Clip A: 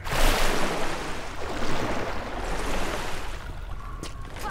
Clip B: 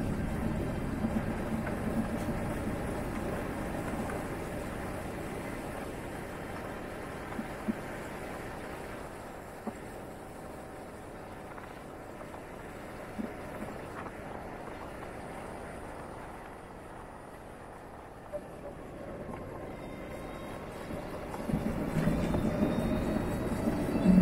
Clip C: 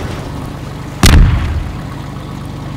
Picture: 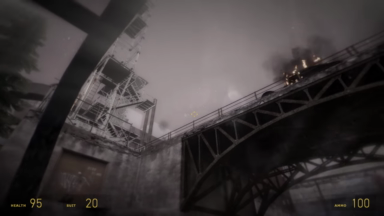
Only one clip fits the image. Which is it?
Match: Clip C